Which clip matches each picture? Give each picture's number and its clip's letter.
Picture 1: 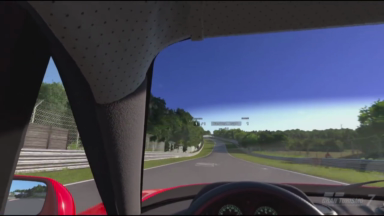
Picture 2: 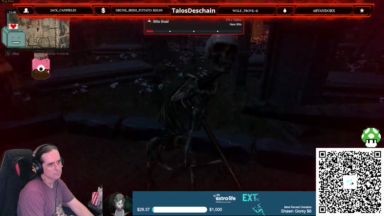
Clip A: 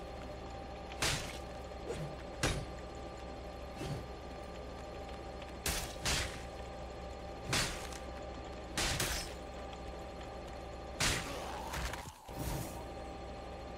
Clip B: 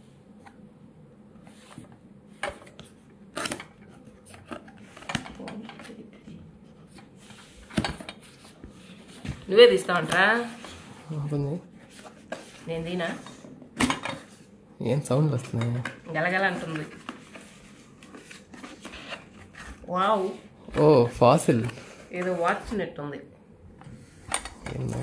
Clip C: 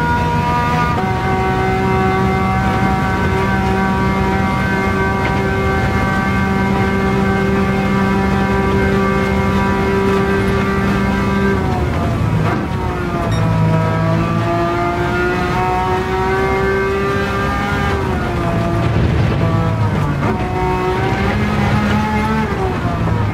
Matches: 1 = C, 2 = A